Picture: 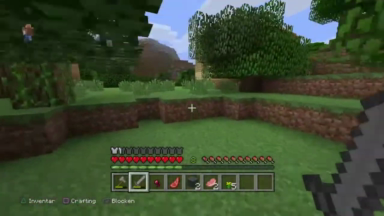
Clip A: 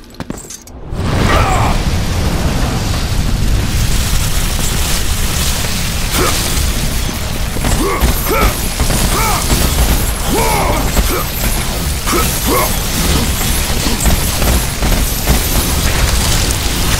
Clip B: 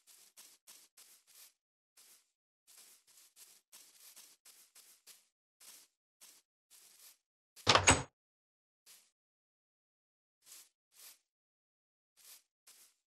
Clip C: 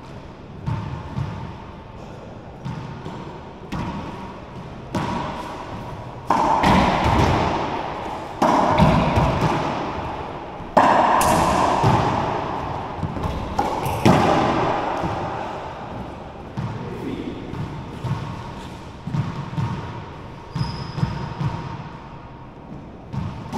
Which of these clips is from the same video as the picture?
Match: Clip B